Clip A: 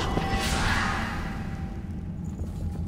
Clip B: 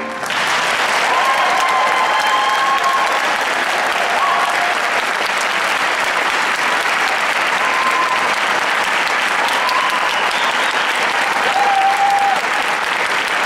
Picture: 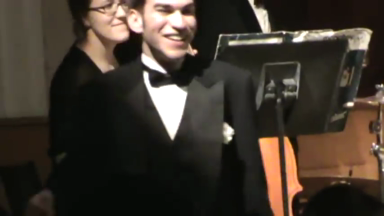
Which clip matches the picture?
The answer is B